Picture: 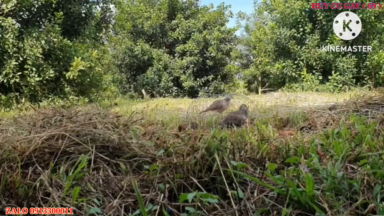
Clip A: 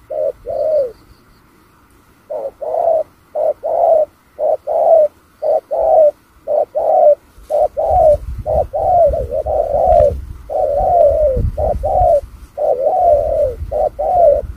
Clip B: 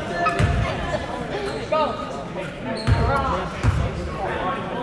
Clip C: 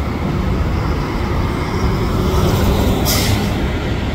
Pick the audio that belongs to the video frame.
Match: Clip A